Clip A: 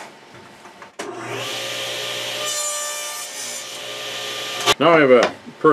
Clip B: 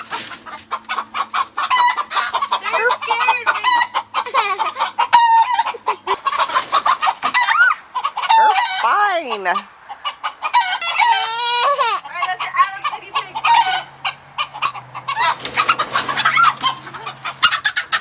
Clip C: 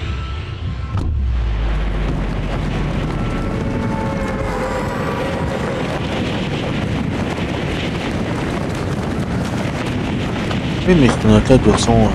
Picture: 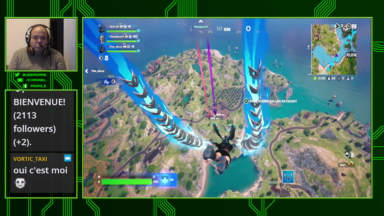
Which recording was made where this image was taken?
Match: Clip C